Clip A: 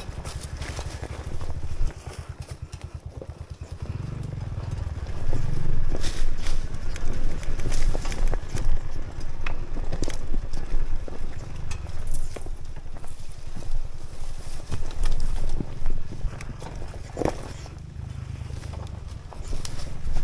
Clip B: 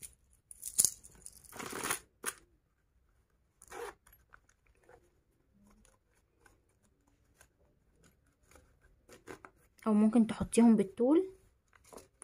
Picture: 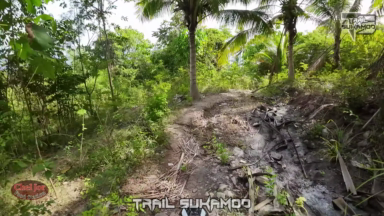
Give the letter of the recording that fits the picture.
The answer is A